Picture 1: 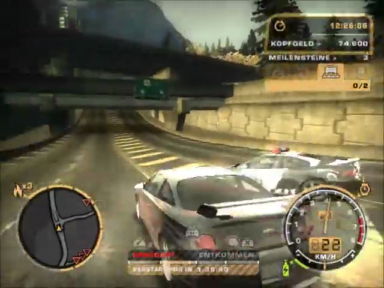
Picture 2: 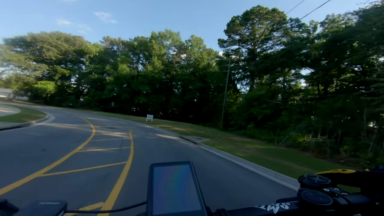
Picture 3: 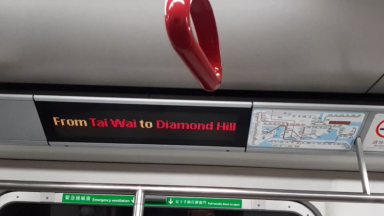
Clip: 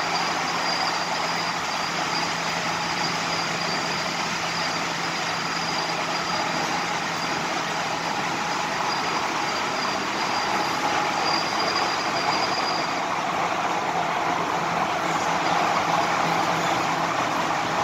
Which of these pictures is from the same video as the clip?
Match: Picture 3